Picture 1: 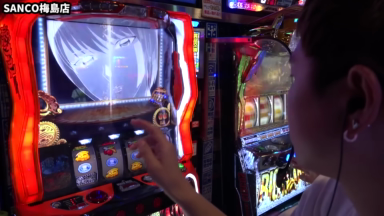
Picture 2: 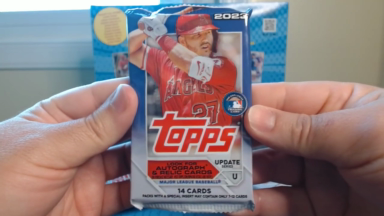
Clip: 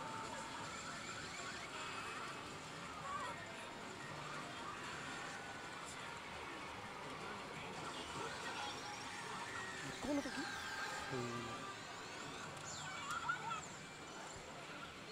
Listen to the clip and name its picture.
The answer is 1